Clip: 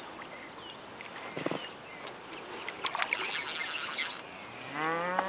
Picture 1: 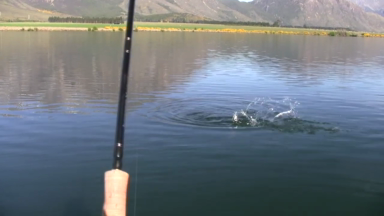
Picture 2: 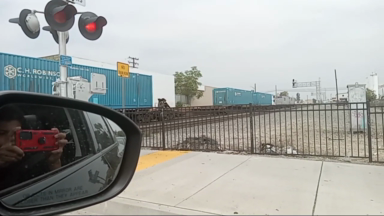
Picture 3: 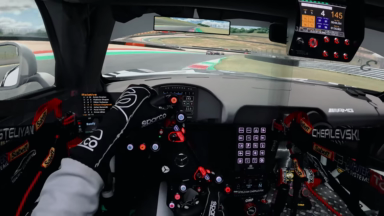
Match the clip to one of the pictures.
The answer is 1